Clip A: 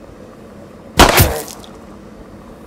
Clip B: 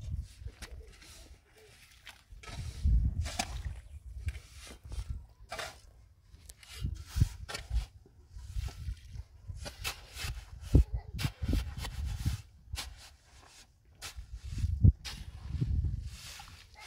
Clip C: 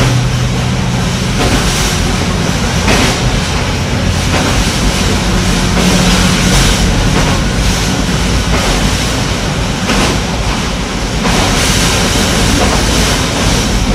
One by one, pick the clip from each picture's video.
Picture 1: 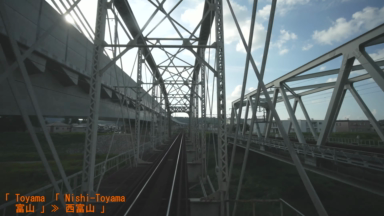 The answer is C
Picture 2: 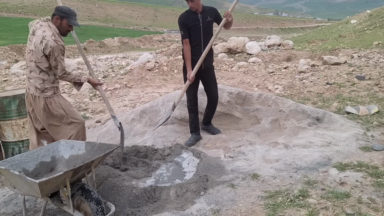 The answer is B